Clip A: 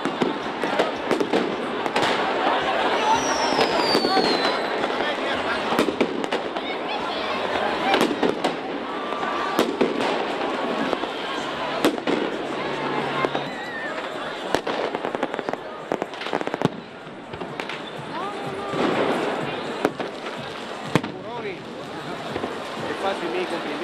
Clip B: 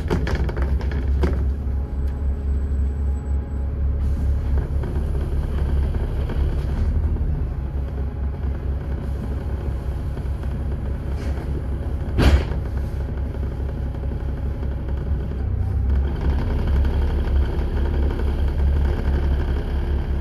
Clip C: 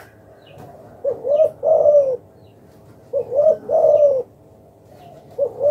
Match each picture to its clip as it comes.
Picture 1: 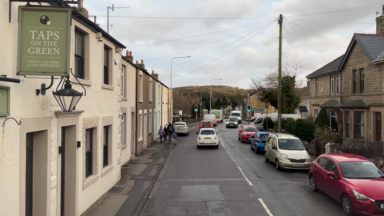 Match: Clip B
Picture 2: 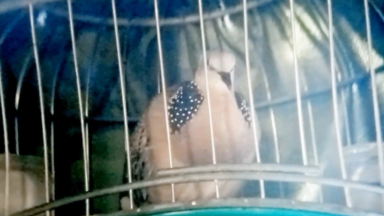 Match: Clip C